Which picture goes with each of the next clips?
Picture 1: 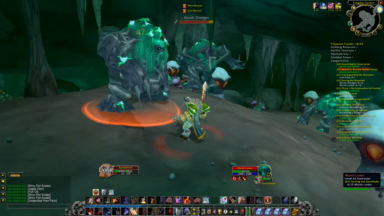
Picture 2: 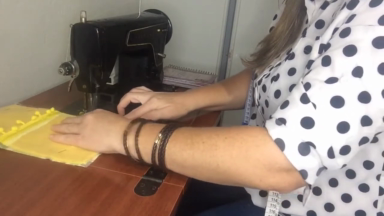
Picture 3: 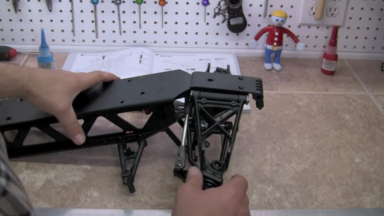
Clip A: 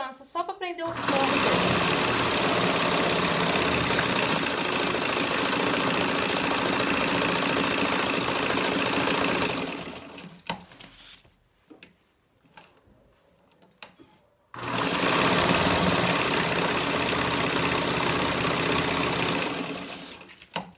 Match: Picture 2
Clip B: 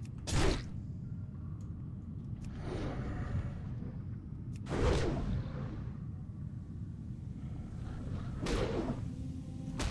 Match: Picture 1